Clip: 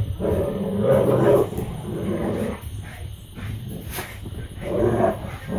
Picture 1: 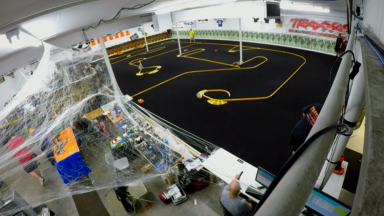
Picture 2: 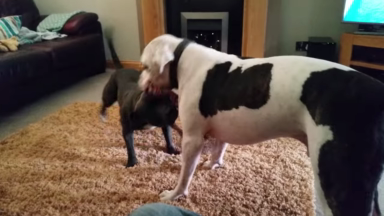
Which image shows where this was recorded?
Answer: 2